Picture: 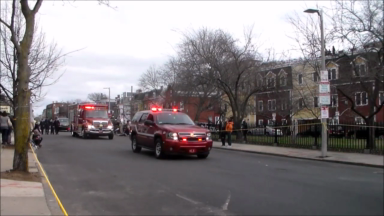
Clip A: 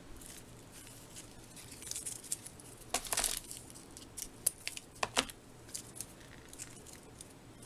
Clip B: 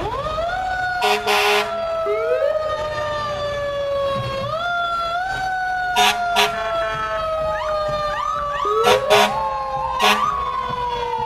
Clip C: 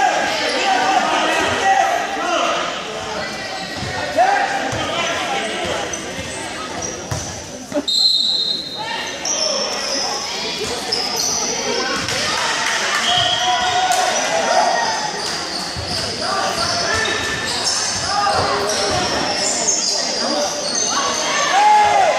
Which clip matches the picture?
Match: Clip B